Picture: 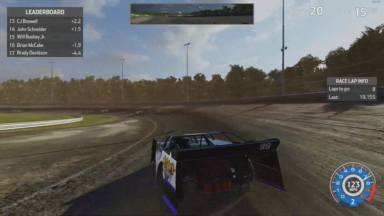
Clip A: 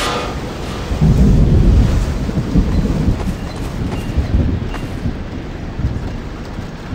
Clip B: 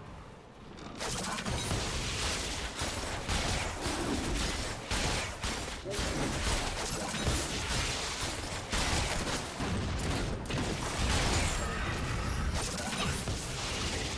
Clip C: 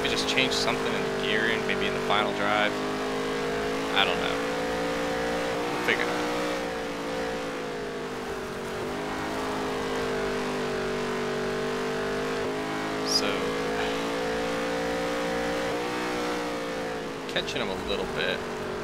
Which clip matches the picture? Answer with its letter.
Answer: C